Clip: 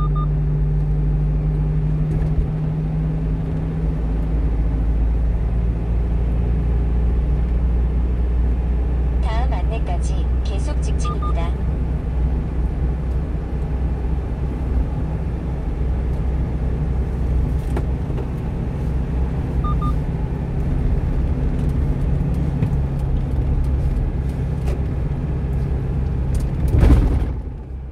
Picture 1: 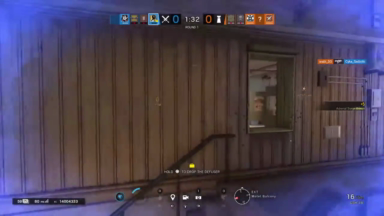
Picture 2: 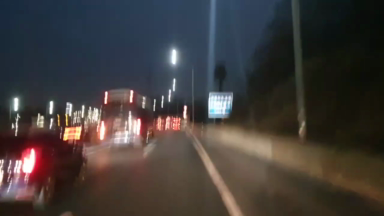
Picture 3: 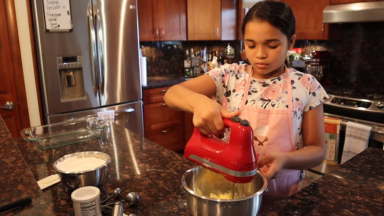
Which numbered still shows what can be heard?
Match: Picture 2